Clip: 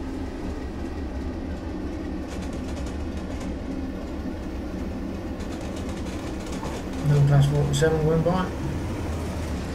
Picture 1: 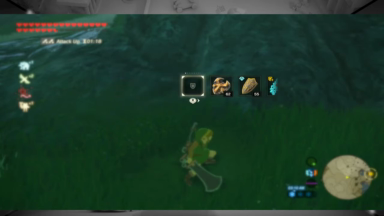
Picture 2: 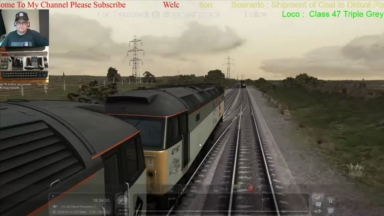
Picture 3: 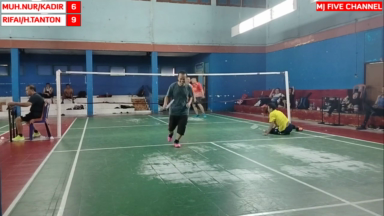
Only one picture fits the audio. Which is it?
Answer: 2